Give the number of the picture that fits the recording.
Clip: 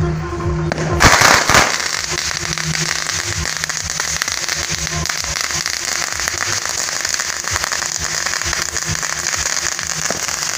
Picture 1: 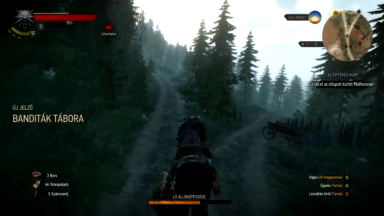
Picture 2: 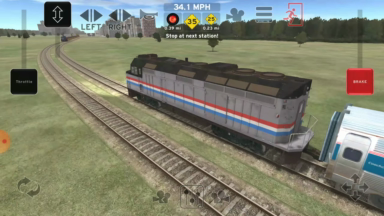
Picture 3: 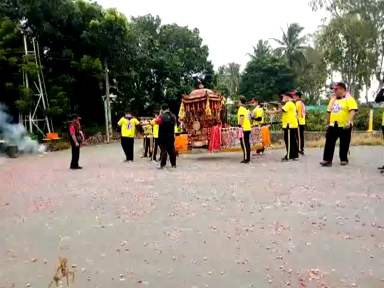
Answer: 3